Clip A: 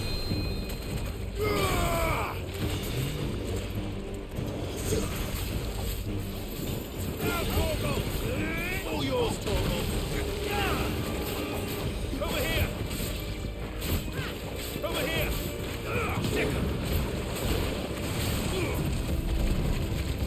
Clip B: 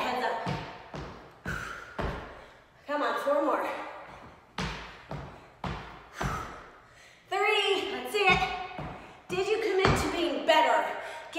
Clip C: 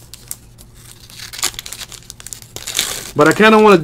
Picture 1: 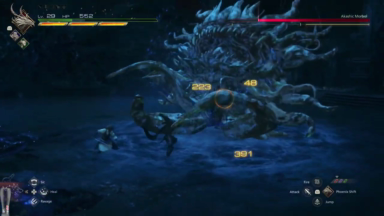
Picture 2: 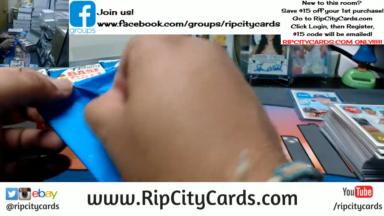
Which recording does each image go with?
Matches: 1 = A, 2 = C